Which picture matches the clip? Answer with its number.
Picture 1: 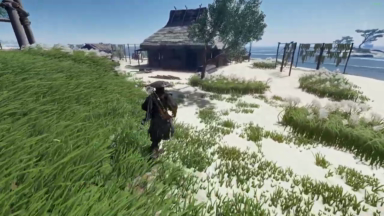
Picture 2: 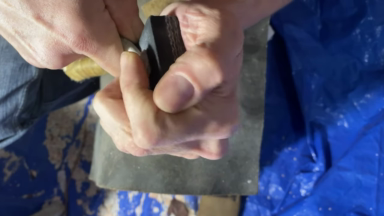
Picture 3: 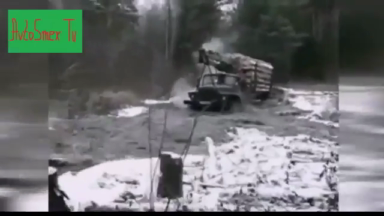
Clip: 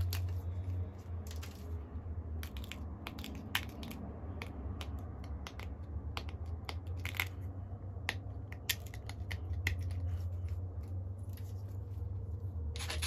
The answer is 2